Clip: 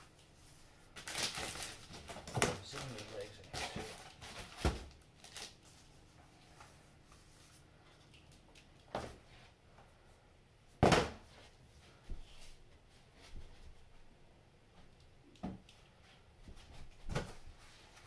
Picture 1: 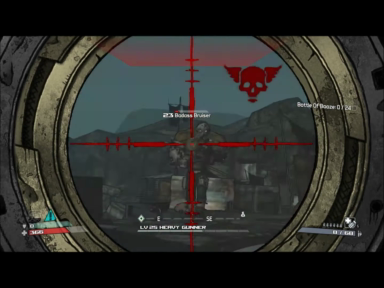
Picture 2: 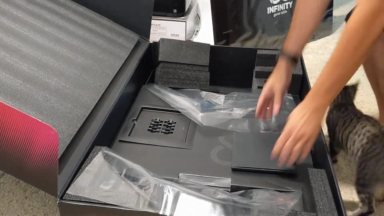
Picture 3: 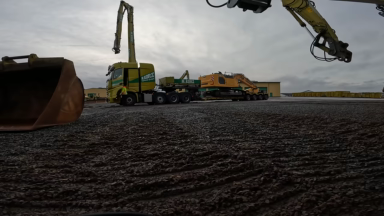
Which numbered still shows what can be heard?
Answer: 2